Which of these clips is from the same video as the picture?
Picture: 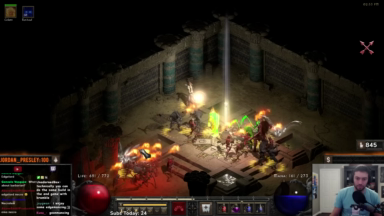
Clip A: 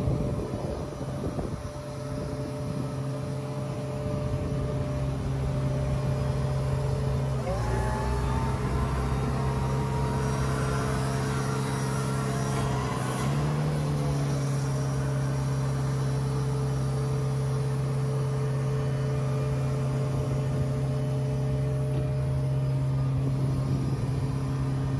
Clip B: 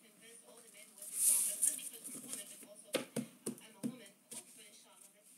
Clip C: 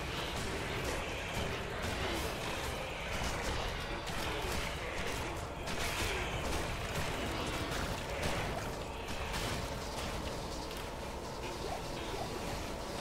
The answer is C